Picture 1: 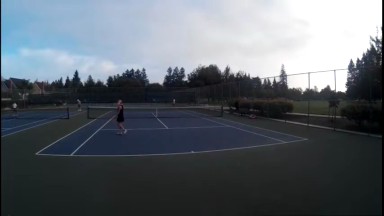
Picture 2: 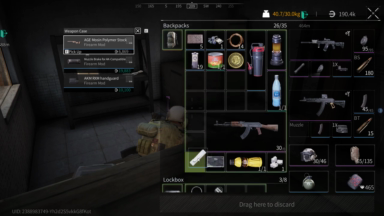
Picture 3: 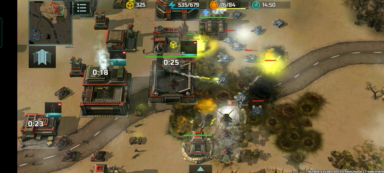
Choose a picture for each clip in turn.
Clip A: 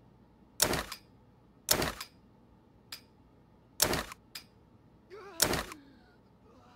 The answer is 2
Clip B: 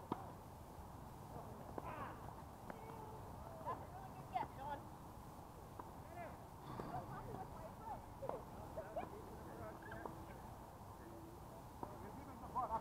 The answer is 1